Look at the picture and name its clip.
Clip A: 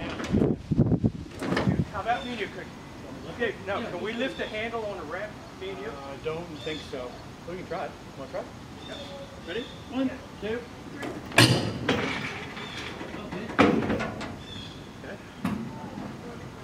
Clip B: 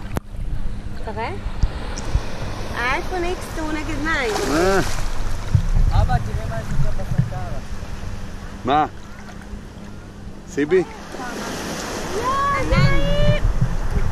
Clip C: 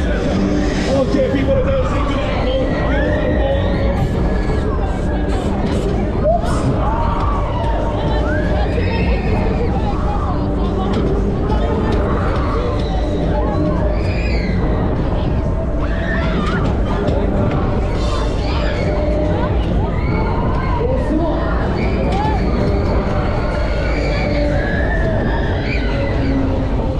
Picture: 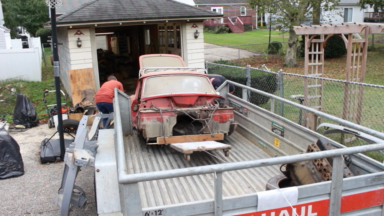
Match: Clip A